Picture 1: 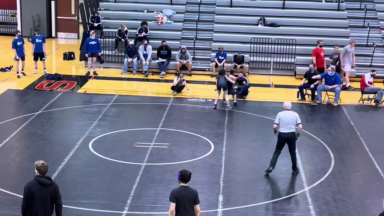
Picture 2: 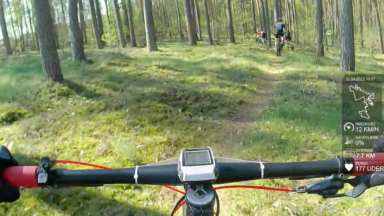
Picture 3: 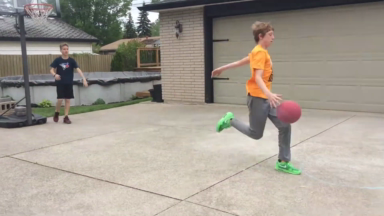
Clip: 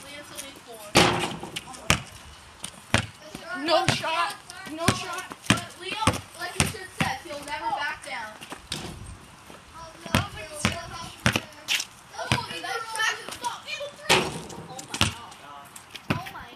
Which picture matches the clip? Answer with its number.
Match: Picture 3